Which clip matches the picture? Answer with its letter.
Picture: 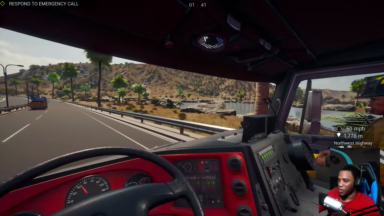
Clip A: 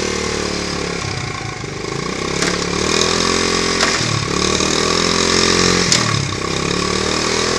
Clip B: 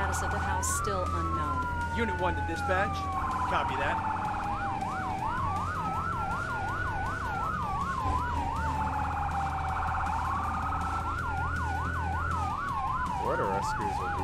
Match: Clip B